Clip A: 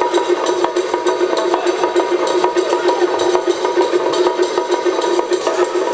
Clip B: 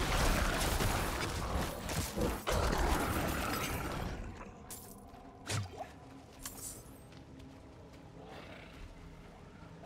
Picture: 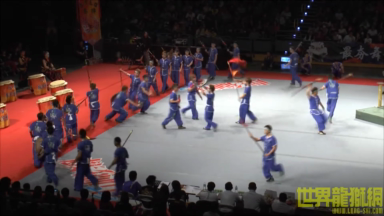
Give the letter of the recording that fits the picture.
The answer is A